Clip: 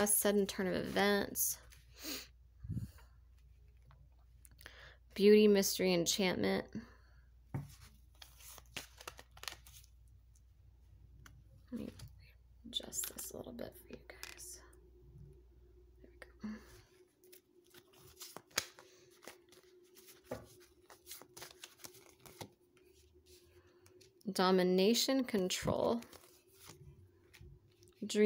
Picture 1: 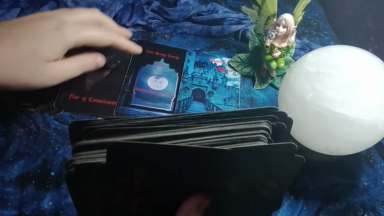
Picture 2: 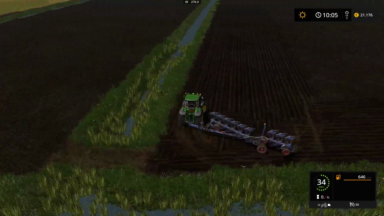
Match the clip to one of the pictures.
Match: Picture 1